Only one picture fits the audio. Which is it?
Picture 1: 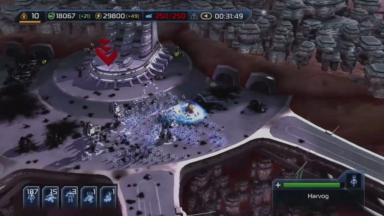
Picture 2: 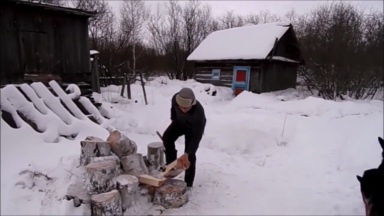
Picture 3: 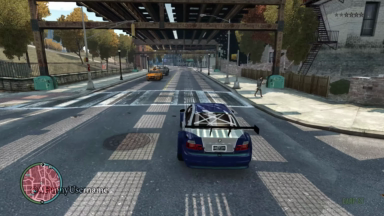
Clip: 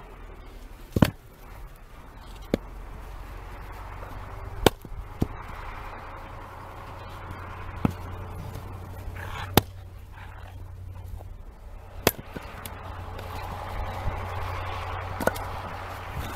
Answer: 2